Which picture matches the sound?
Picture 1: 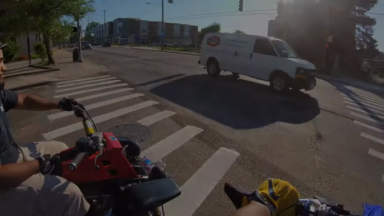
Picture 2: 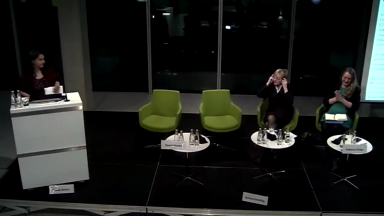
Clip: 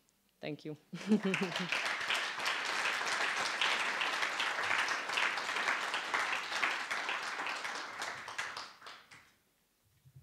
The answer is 2